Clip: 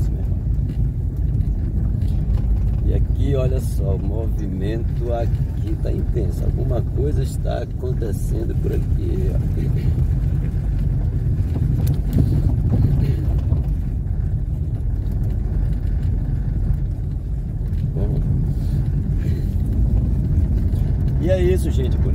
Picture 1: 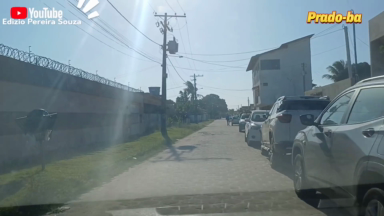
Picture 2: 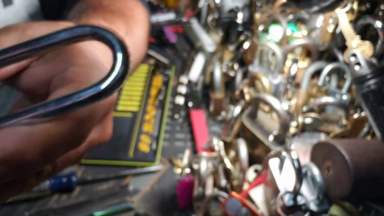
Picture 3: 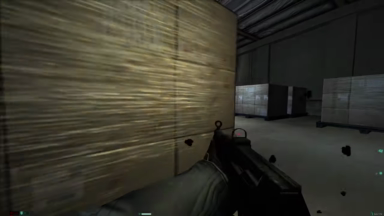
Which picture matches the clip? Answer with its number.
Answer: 1